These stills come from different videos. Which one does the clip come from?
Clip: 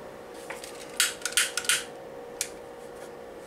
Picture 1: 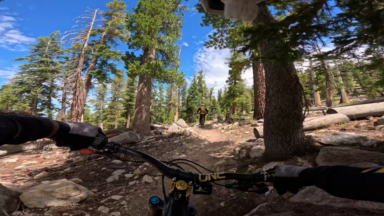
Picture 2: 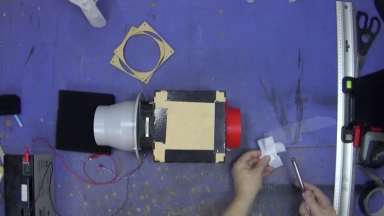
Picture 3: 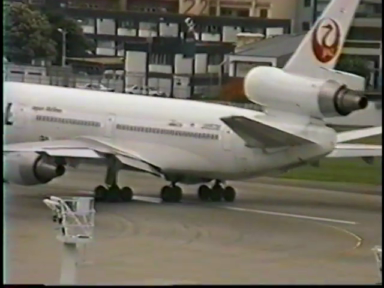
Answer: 2